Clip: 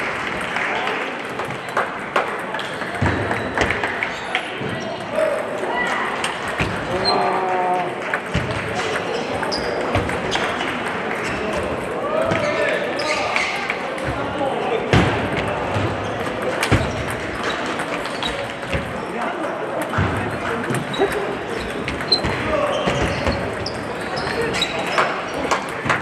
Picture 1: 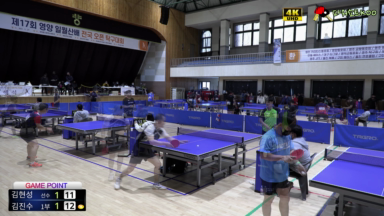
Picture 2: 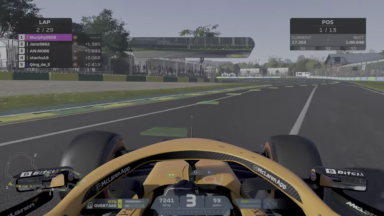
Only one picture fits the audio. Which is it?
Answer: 1